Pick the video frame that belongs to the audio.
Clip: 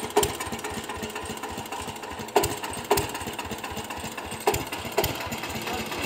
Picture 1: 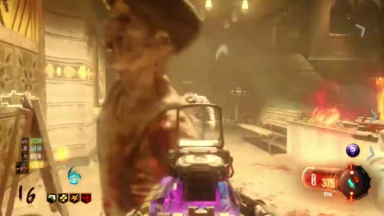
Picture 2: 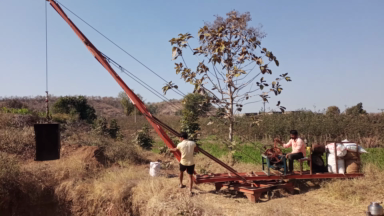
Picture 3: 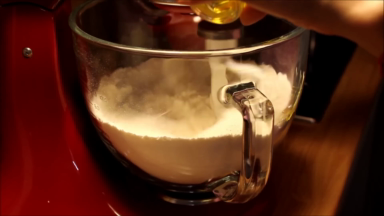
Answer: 2